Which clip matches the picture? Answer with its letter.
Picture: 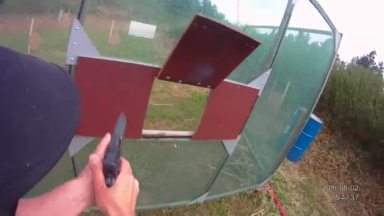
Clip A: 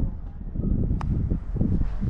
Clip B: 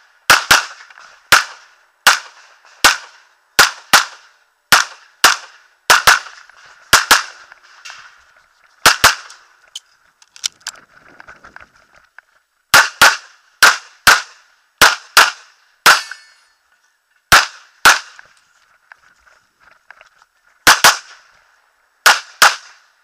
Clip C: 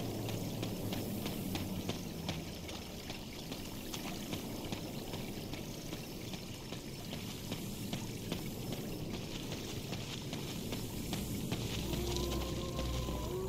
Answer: B